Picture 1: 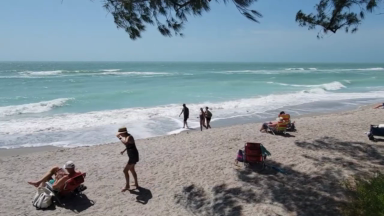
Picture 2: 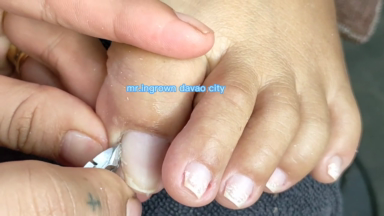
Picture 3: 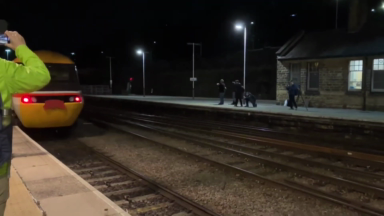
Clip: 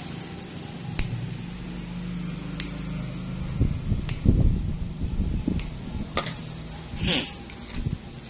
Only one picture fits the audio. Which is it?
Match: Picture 2